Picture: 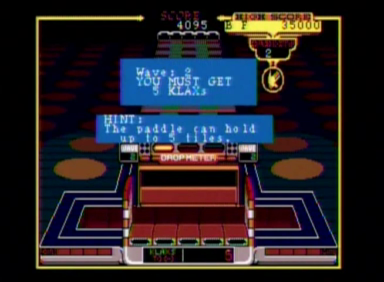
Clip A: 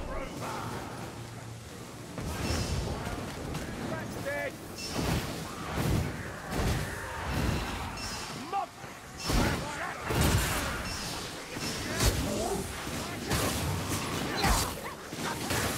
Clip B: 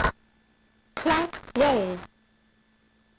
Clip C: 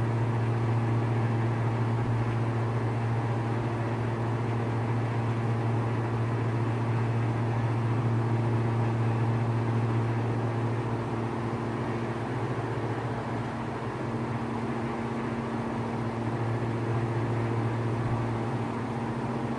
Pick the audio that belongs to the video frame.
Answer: B